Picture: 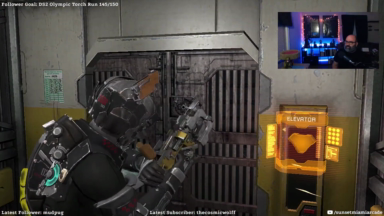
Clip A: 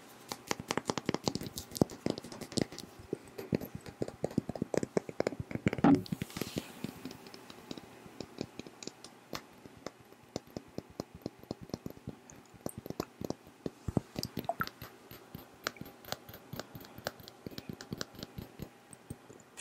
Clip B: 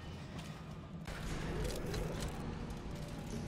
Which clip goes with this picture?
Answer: B